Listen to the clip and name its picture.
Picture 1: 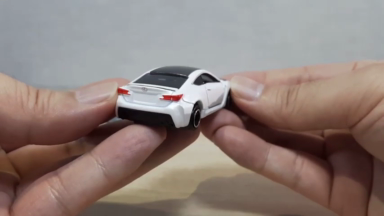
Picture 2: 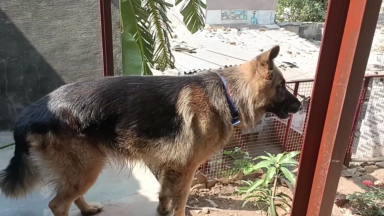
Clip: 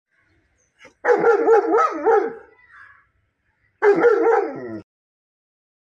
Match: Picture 2